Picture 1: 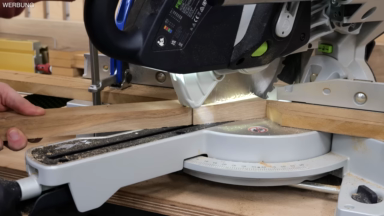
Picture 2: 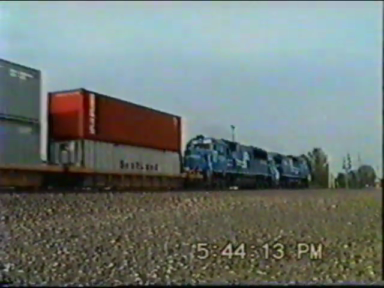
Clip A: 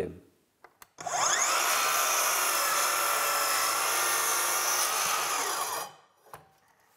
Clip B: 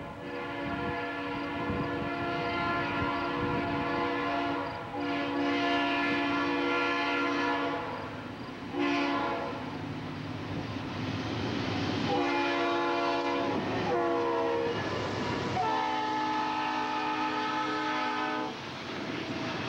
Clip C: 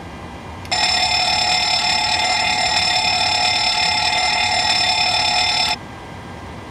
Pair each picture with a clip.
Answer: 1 A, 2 B